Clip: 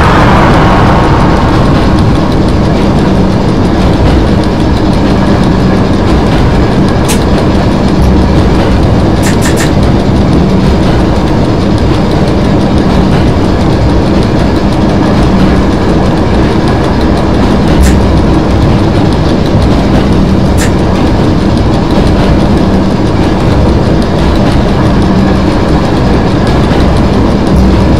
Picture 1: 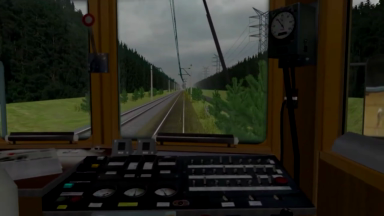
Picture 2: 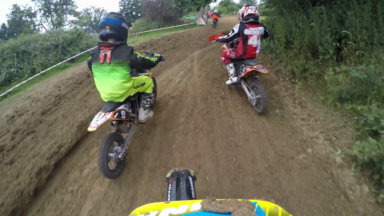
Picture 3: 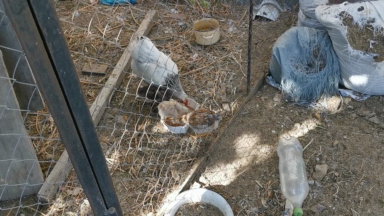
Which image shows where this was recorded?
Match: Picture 1